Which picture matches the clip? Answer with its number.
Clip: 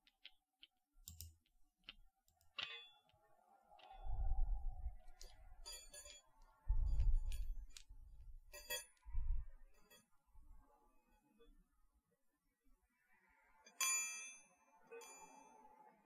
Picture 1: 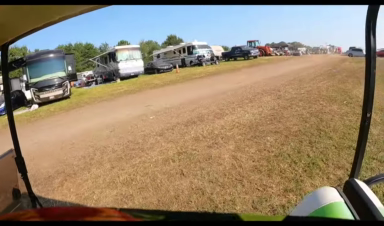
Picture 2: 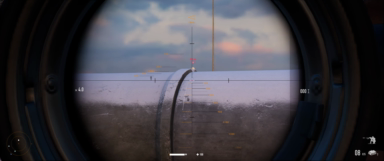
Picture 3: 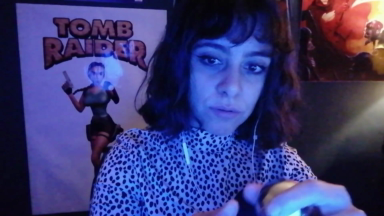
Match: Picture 3